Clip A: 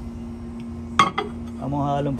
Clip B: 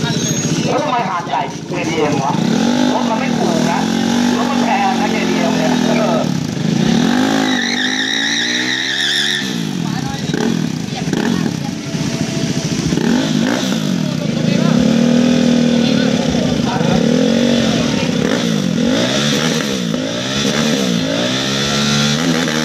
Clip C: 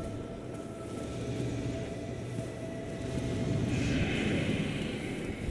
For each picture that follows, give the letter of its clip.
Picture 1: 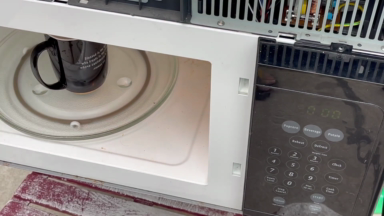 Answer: A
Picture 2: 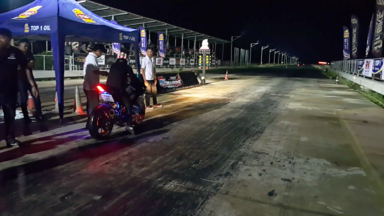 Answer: B